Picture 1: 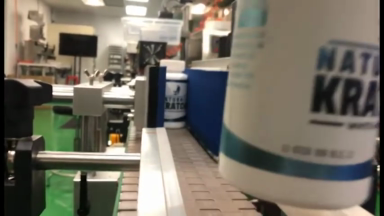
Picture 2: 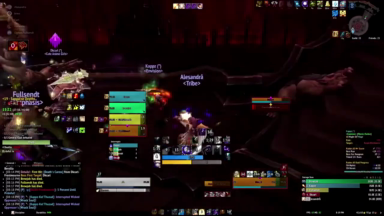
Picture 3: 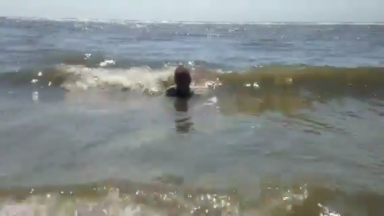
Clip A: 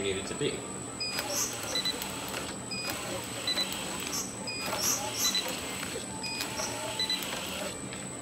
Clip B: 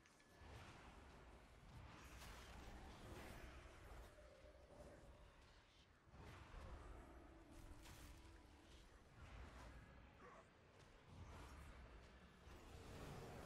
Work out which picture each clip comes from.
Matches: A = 1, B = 2